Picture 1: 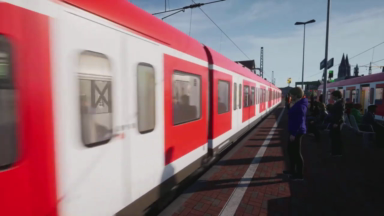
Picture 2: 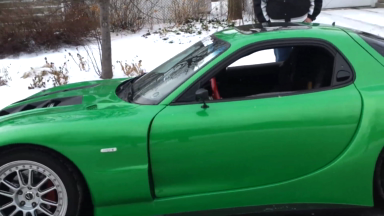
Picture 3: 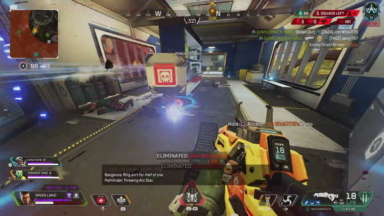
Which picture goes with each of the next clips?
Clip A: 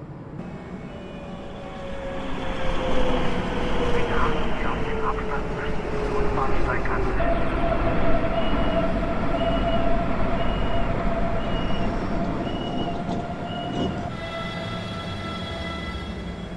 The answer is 1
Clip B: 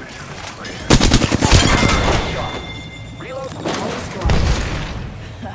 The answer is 3